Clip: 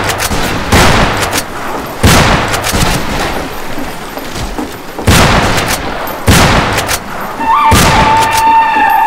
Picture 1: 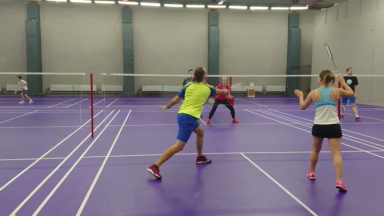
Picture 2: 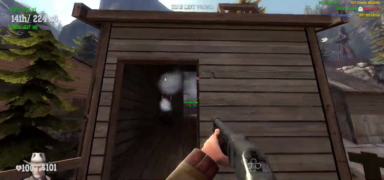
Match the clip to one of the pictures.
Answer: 2